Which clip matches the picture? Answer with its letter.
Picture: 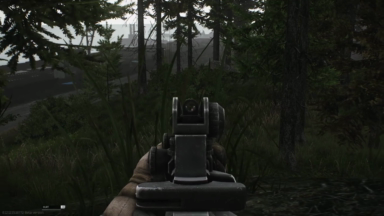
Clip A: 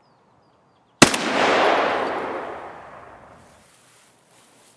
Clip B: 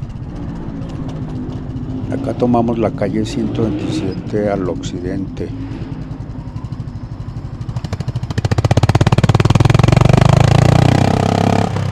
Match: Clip A